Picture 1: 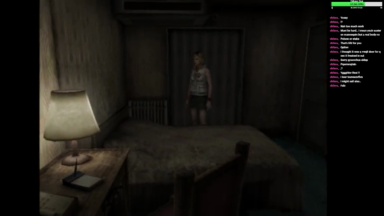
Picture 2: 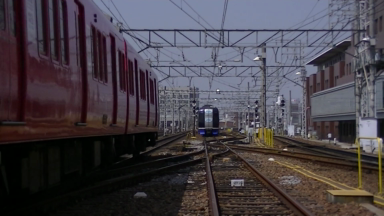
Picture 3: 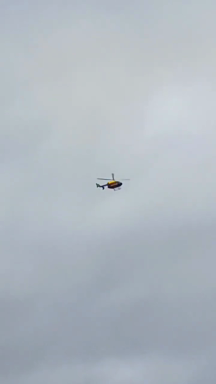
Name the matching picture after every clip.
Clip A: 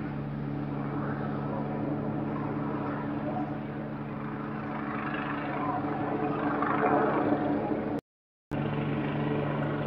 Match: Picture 3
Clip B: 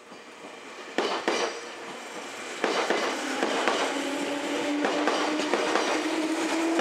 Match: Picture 2